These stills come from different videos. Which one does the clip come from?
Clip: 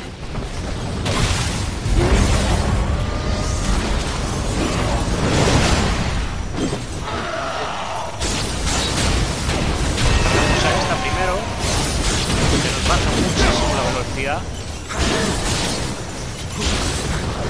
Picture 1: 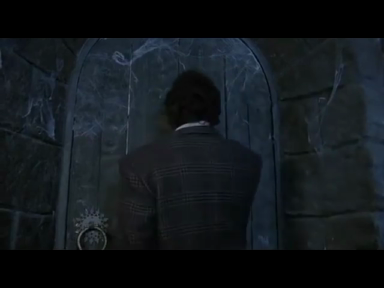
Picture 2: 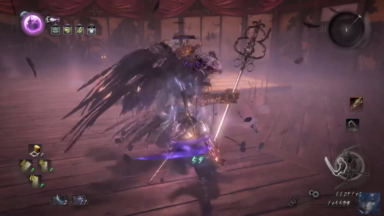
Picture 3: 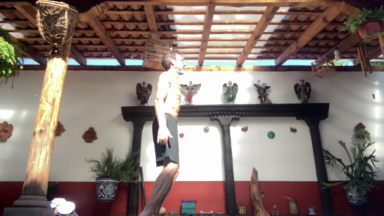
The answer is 2